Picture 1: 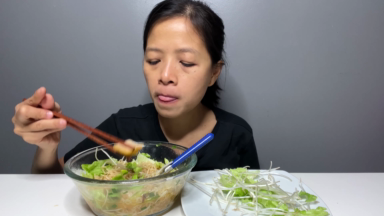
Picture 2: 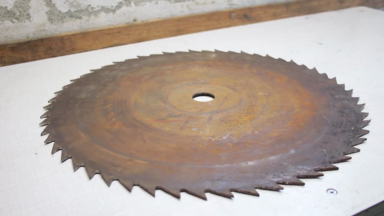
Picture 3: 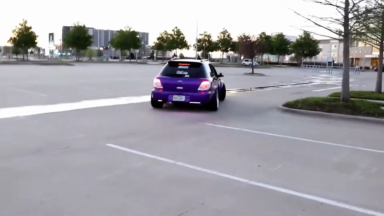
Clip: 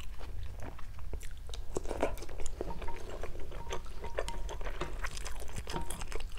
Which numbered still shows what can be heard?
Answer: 1